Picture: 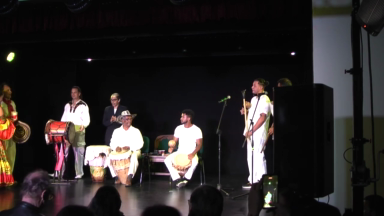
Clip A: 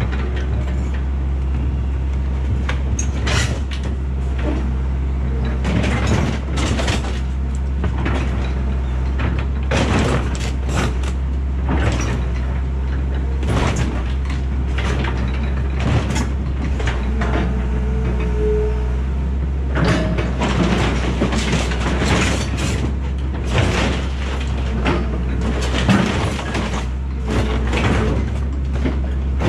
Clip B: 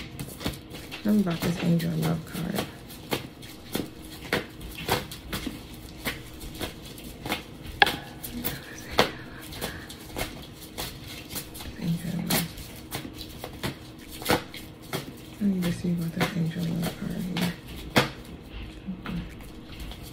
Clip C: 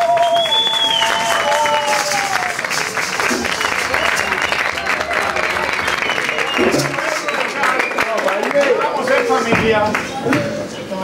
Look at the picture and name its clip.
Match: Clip C